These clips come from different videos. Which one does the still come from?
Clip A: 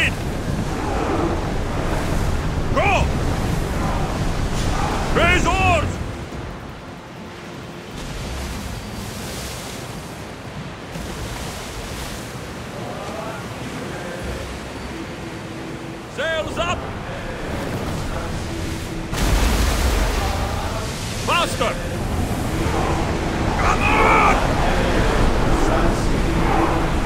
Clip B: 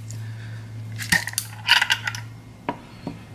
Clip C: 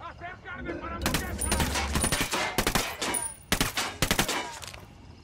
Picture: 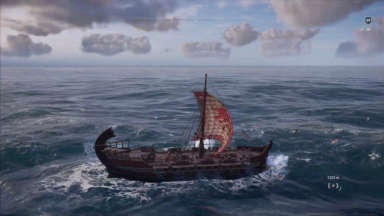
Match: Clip A